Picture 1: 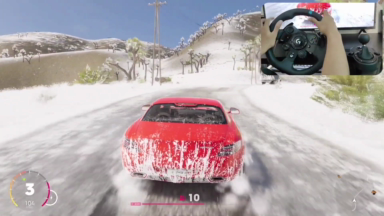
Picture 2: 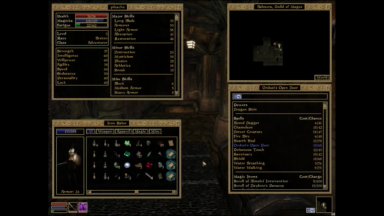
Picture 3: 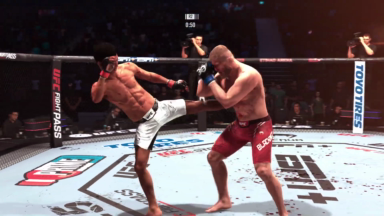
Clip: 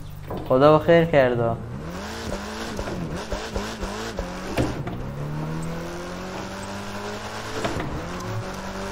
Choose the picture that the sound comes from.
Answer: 1